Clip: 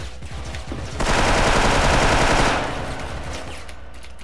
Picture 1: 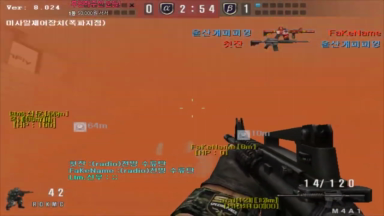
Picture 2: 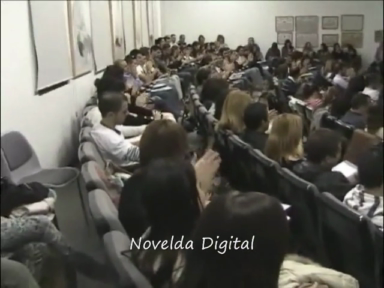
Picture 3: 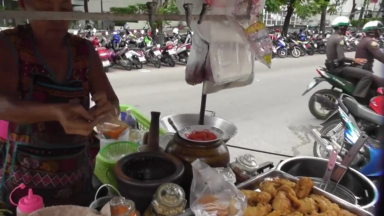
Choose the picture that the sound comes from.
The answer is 1